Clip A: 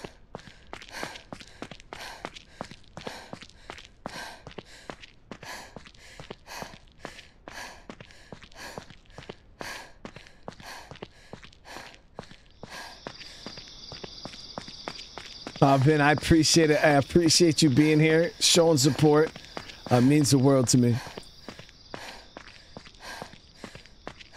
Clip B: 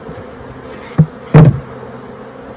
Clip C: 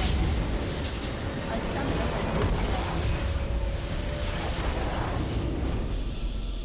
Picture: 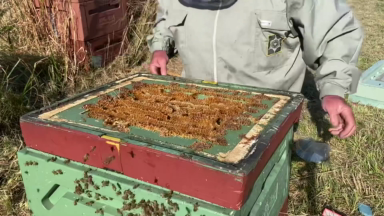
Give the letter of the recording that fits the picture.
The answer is B